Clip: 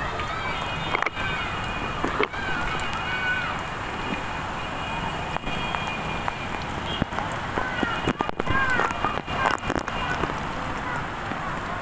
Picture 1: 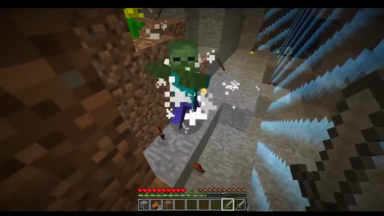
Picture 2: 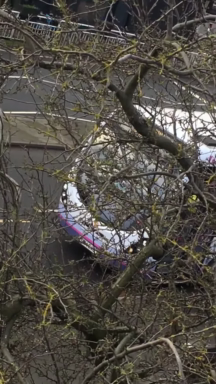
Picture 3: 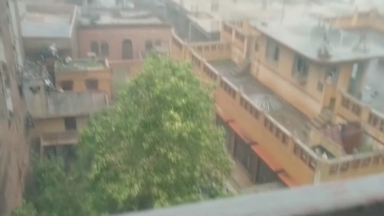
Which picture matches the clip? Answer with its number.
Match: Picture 3